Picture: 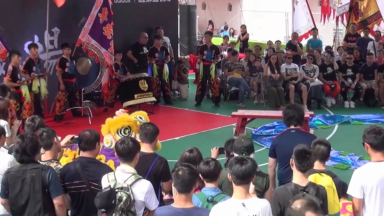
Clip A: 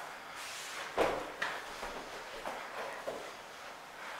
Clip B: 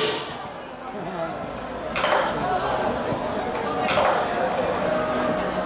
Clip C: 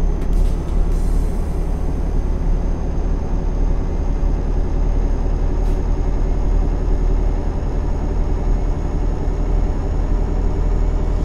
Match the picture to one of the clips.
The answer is B